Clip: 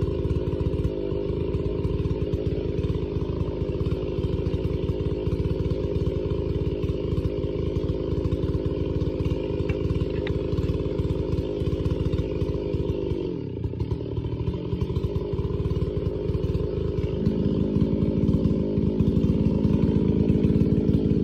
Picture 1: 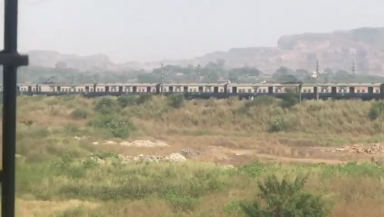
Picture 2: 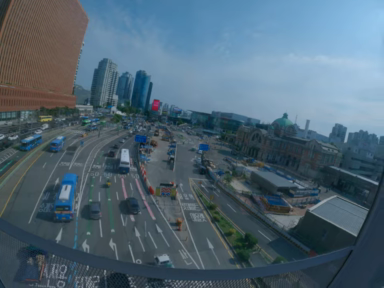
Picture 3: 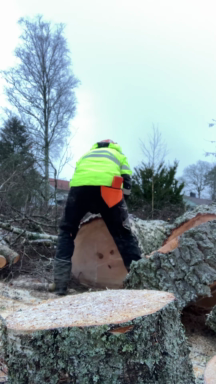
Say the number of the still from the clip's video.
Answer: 3